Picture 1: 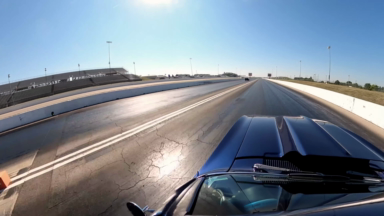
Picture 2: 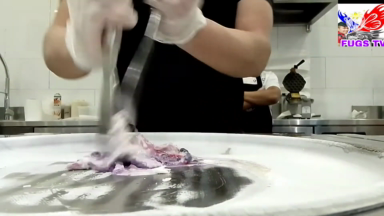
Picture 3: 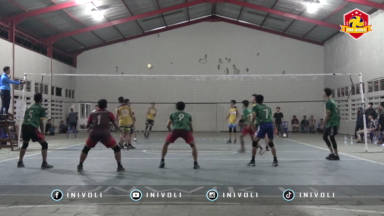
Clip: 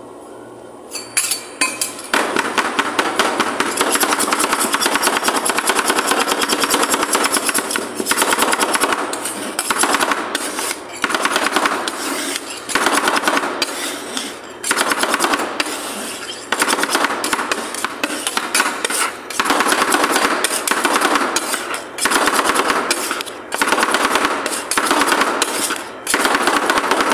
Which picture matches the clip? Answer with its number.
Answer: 2